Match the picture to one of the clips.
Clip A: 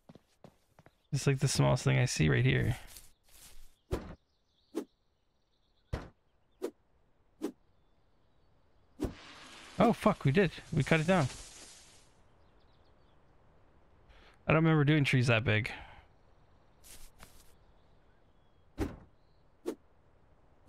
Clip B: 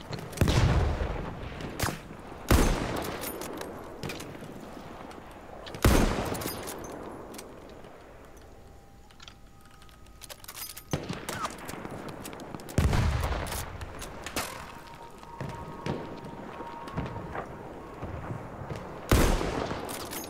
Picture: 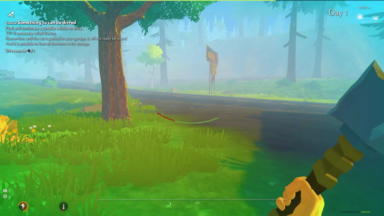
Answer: A